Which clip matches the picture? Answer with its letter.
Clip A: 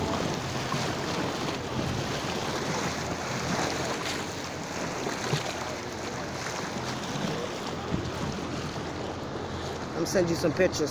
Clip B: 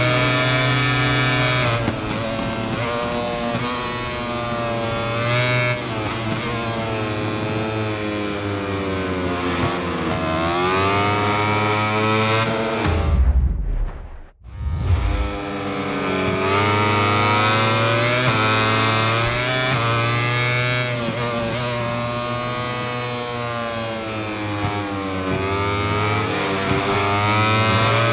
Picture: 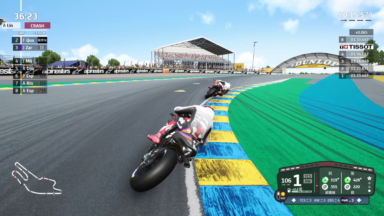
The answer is B